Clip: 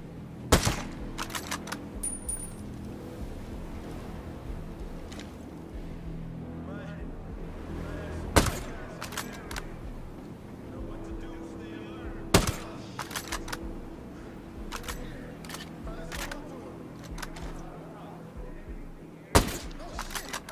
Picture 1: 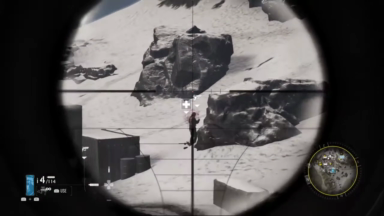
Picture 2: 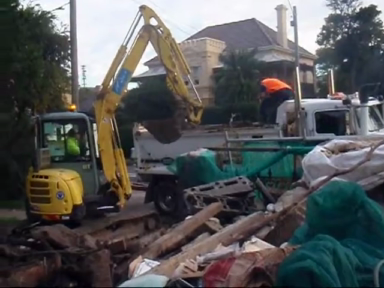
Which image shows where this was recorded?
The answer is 1